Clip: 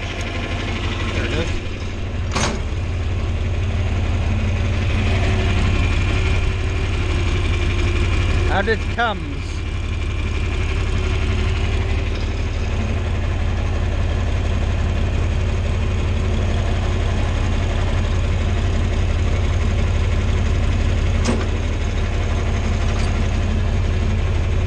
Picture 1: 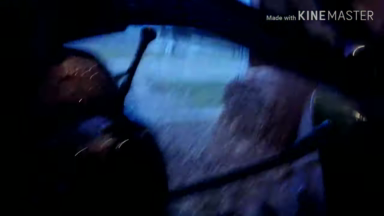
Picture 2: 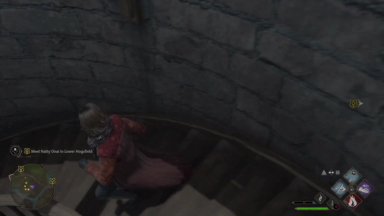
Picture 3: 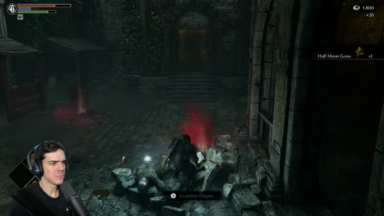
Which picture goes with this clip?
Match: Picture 1